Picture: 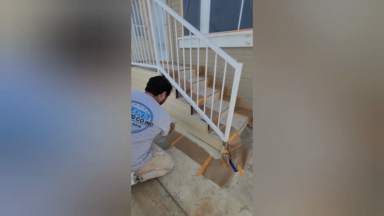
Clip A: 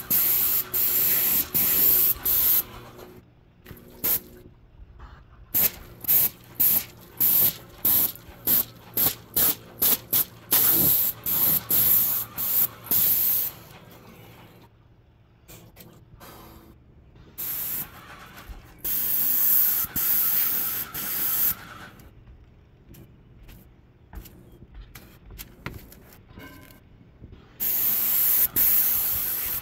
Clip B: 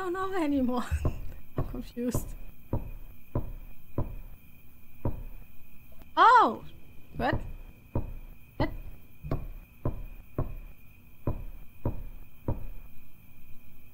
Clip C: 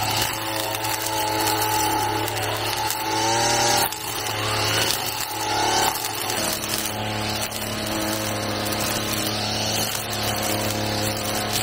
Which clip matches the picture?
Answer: A